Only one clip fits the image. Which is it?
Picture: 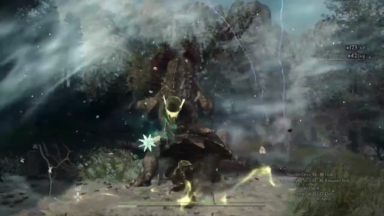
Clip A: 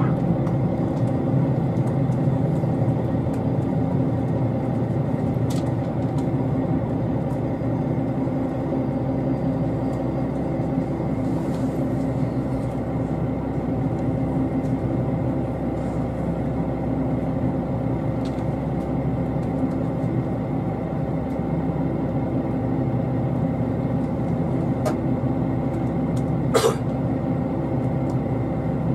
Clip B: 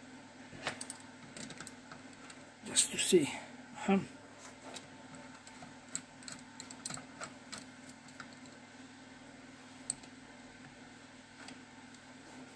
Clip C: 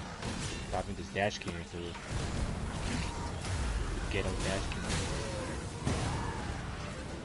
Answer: C